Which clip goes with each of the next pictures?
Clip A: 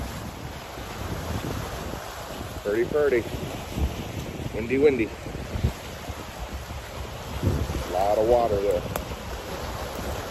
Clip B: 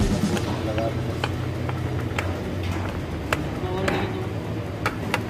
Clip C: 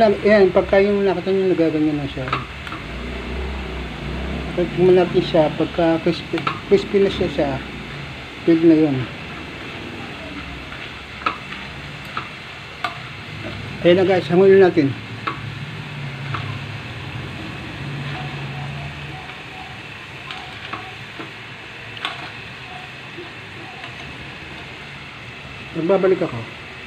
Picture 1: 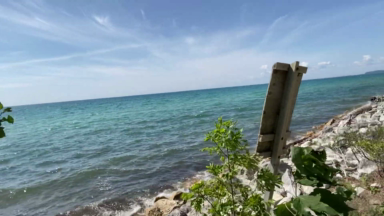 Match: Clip A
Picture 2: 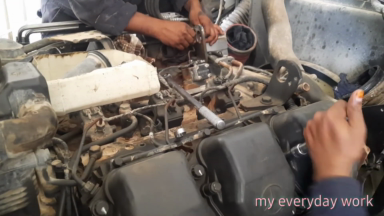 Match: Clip B